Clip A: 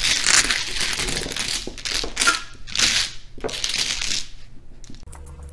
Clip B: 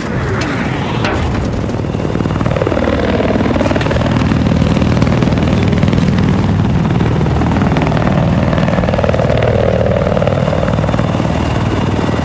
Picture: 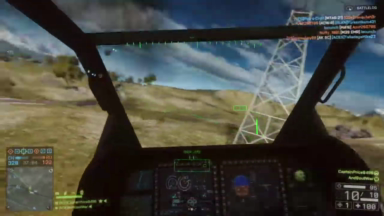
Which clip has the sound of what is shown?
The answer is B